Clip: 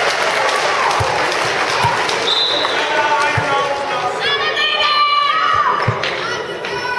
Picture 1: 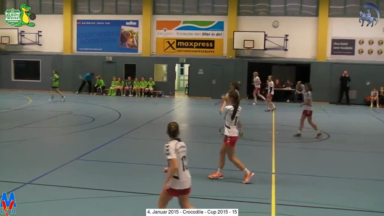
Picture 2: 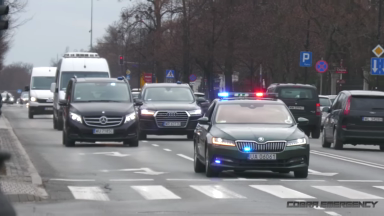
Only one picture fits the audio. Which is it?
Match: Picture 1